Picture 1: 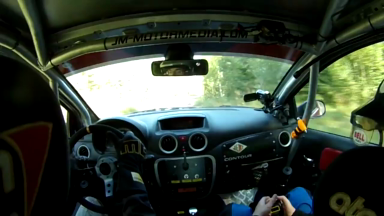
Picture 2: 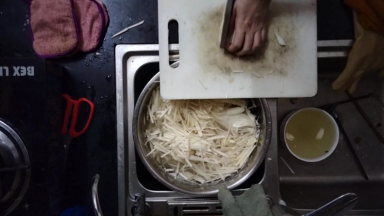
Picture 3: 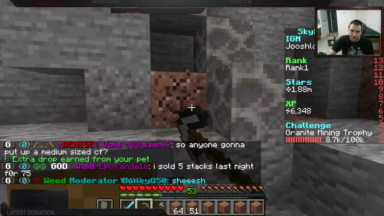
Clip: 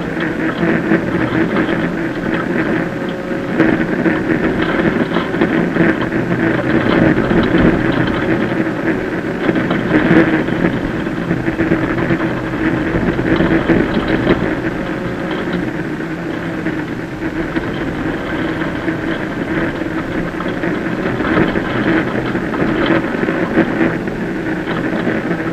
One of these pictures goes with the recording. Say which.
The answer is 1